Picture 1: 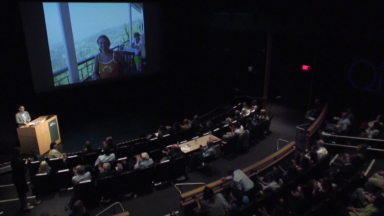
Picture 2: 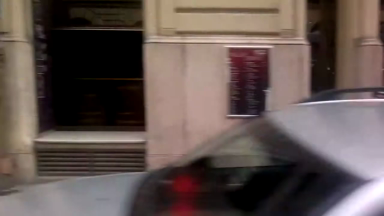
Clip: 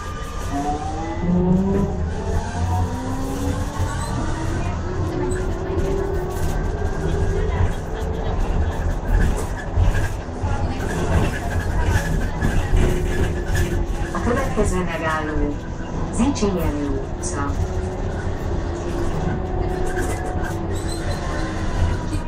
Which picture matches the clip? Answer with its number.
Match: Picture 2